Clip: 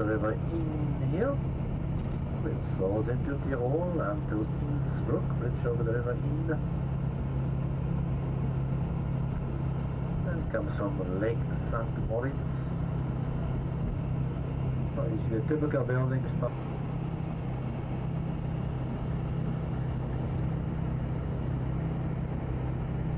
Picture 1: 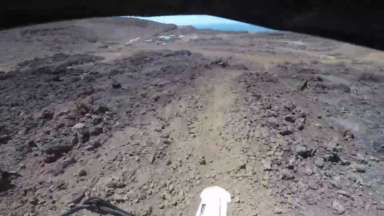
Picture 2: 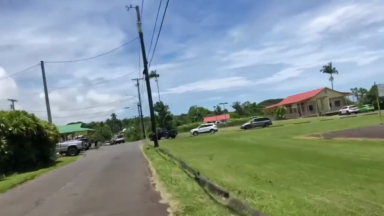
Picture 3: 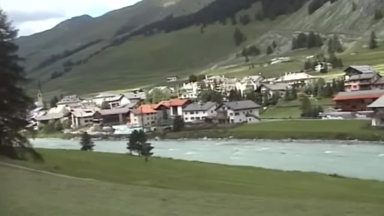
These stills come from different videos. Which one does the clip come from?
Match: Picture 3